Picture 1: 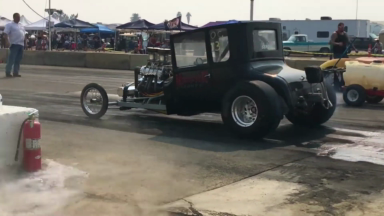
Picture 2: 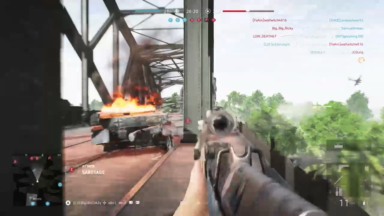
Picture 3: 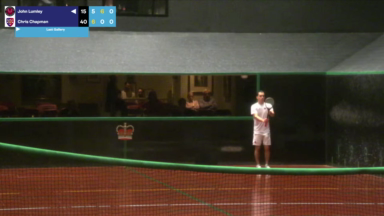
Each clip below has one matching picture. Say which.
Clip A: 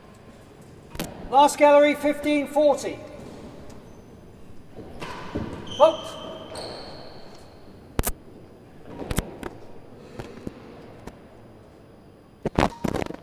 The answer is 3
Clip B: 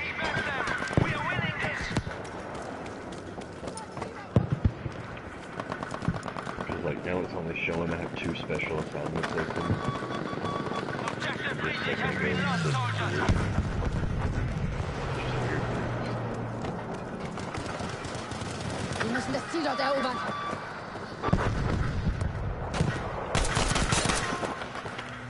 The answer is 2